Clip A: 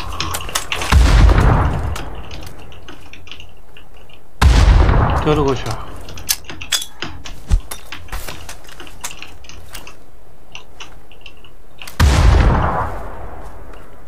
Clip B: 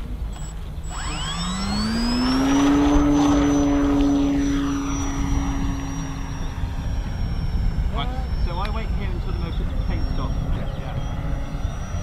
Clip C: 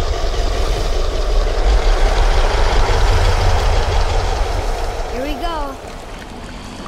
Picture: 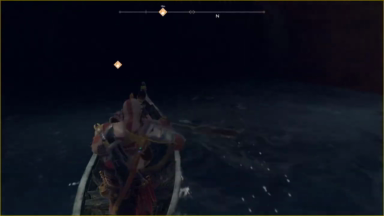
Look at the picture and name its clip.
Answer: C